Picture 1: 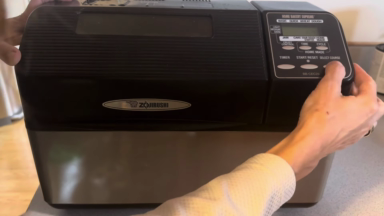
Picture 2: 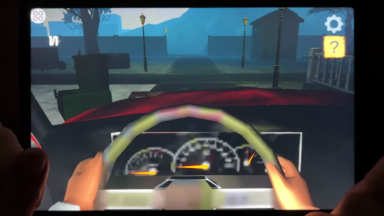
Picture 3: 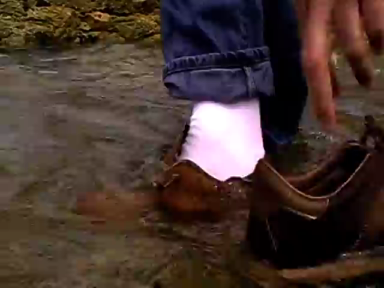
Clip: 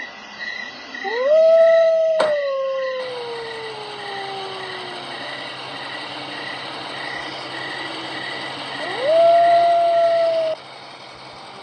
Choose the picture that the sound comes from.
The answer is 2